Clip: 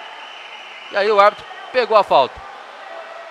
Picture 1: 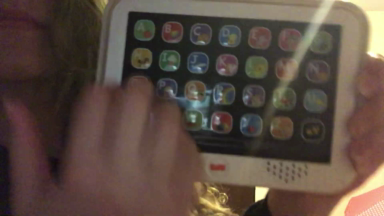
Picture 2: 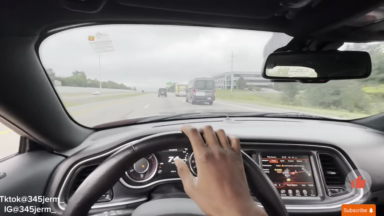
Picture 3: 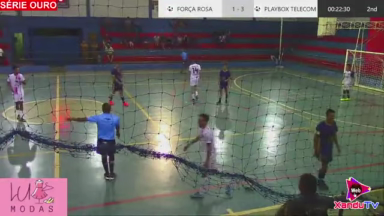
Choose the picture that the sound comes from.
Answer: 3